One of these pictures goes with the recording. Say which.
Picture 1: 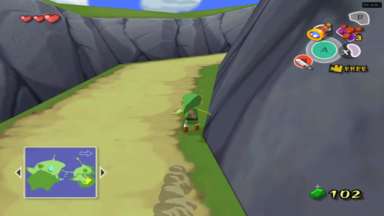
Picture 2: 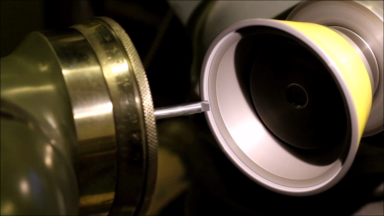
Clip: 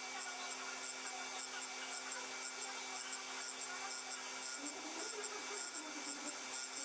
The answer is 2